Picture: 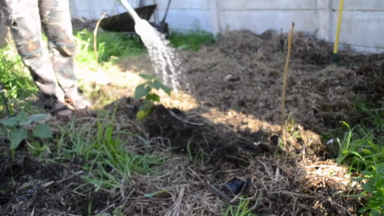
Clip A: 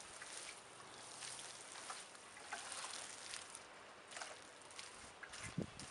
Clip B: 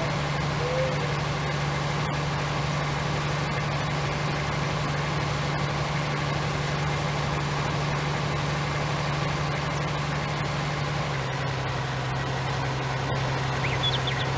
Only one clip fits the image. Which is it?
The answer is A